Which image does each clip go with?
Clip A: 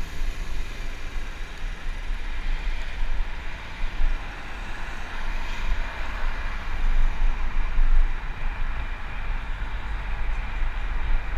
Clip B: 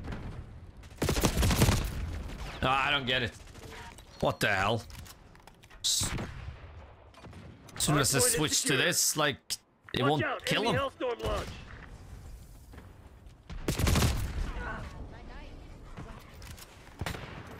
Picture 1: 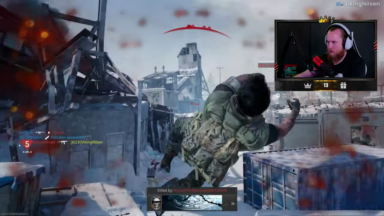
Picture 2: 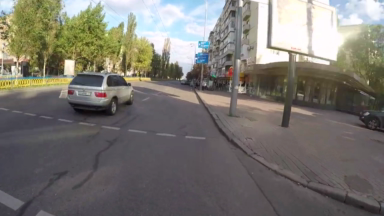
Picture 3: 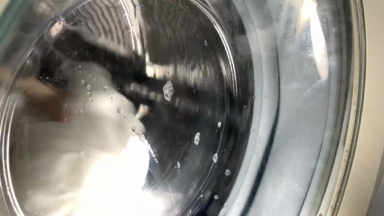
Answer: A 2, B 1